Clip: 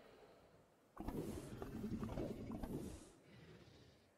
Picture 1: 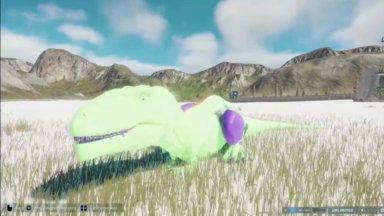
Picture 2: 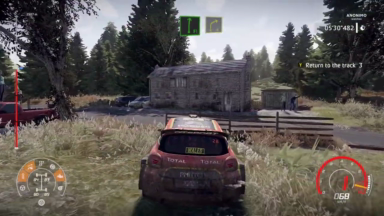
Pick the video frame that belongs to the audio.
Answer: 1